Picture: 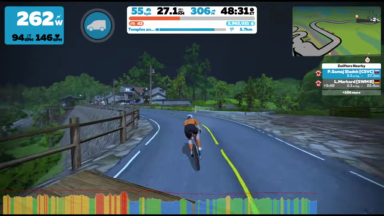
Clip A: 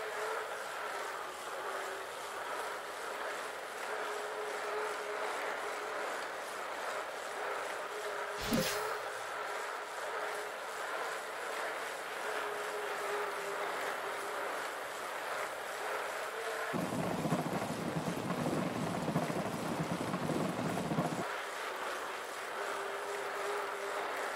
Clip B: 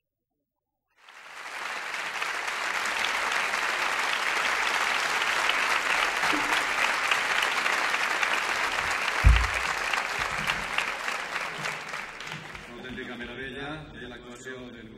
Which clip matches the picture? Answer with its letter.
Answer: A